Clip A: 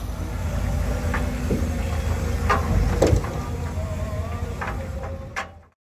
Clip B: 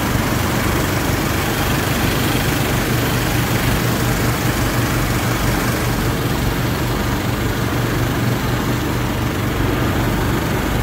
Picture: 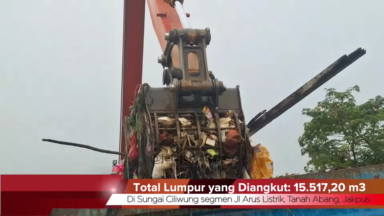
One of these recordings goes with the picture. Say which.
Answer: A